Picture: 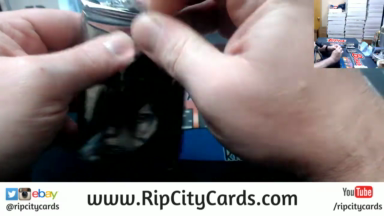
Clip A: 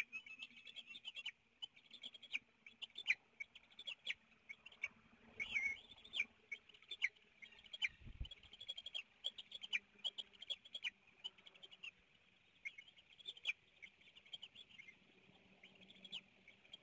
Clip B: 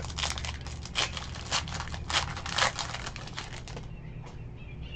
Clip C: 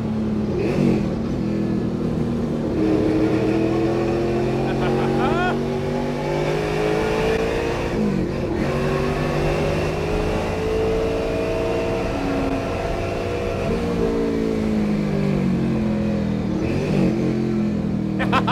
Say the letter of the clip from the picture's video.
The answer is B